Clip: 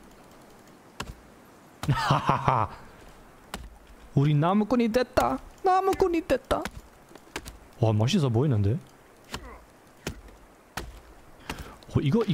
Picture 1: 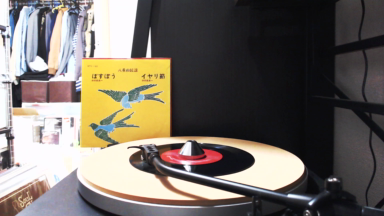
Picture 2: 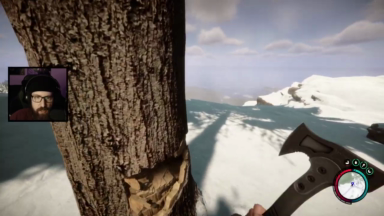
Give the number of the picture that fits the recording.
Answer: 2